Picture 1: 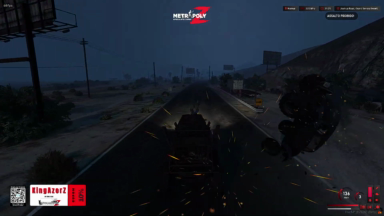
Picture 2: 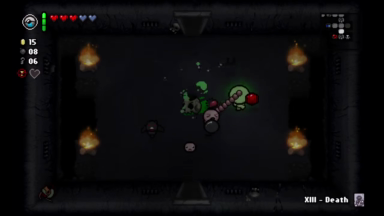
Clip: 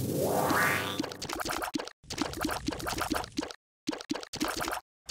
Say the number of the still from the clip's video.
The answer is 2